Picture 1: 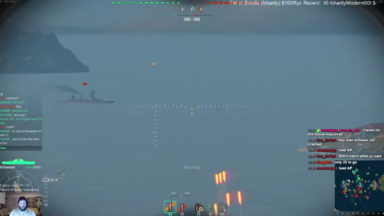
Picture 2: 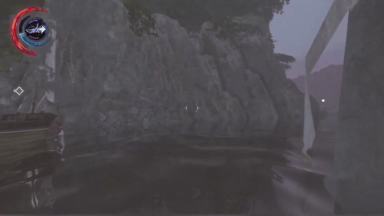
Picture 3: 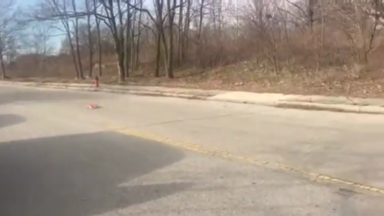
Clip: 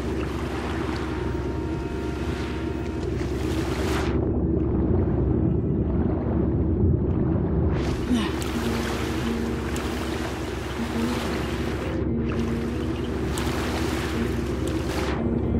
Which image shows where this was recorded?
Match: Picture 2